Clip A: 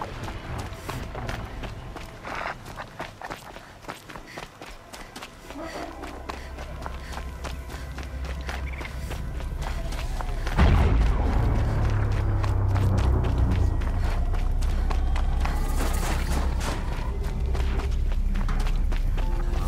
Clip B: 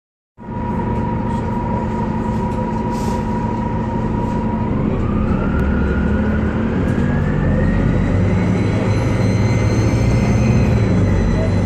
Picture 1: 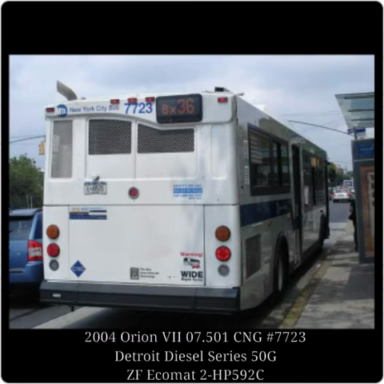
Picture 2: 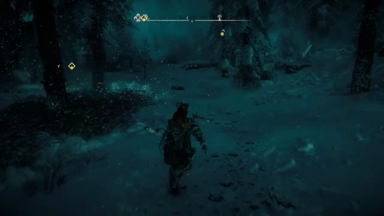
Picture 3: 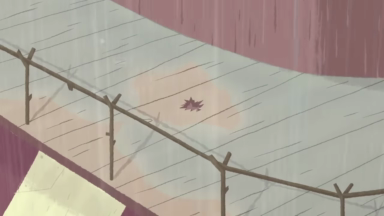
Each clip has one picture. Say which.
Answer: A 2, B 1